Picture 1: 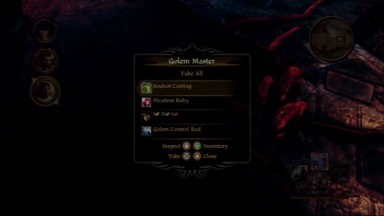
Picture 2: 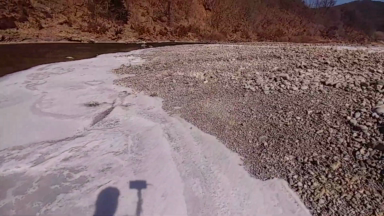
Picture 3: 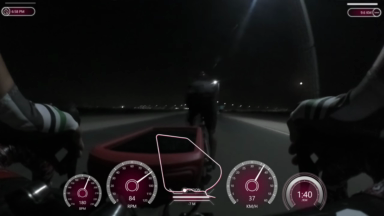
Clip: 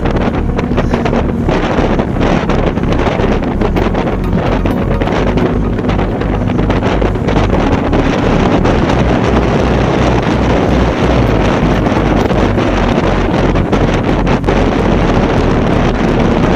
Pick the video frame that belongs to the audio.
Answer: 3